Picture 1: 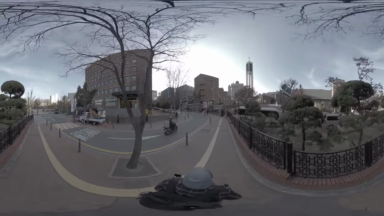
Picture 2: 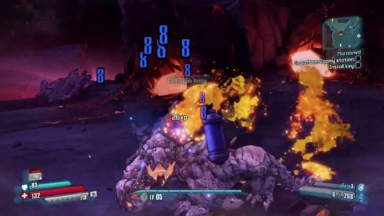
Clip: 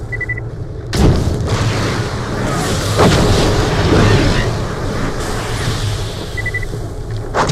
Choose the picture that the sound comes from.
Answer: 2